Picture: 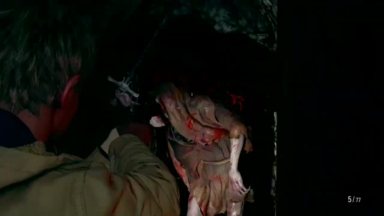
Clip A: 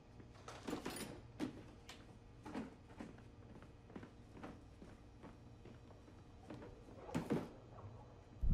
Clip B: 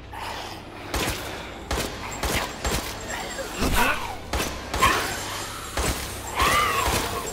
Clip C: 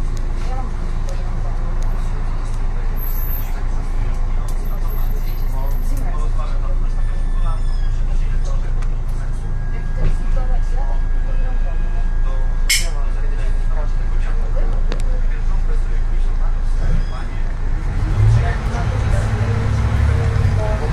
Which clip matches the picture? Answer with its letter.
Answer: B